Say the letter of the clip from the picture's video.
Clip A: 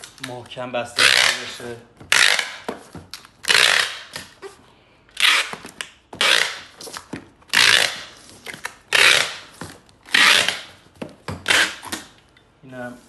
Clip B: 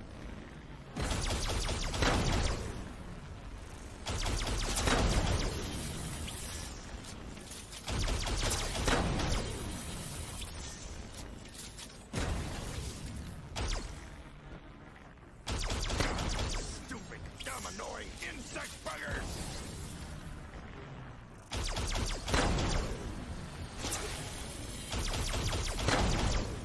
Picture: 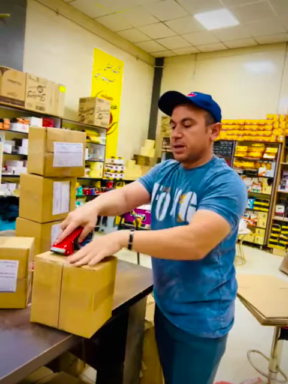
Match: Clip A